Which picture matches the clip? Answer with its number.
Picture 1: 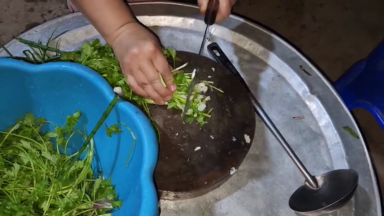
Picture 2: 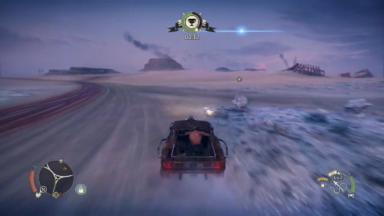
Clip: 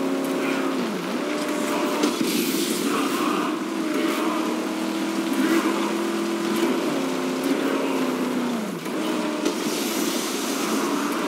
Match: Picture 2